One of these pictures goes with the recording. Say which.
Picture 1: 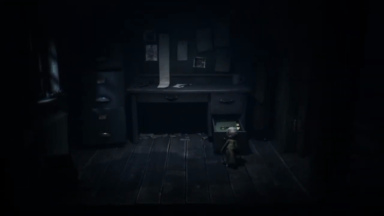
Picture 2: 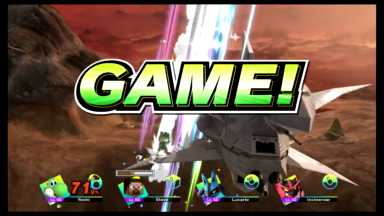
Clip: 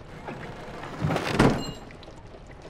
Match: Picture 1